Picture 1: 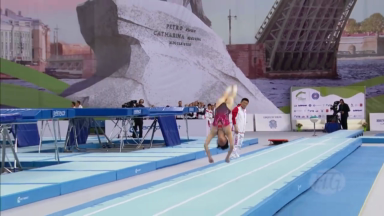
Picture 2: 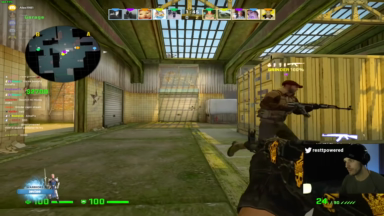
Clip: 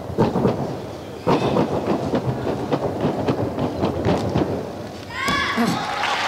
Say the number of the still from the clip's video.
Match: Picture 1